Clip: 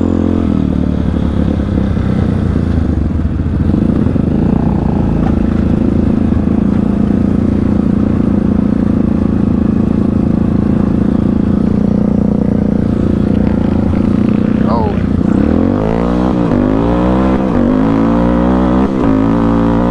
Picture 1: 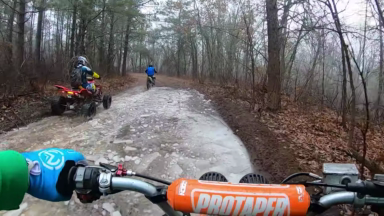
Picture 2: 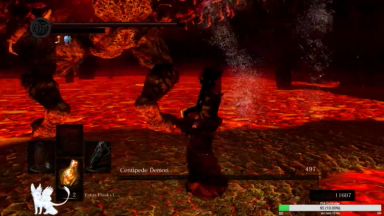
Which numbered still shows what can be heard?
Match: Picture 1